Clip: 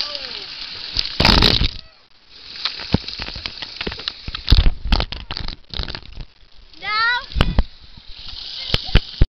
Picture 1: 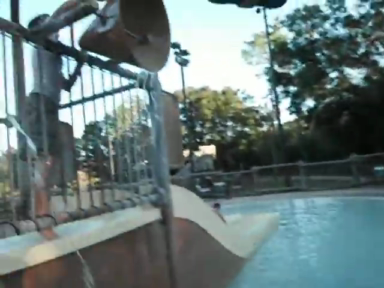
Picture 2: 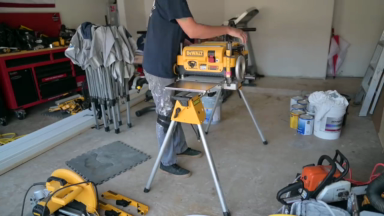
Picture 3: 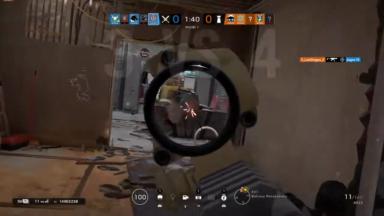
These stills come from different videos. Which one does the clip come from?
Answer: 1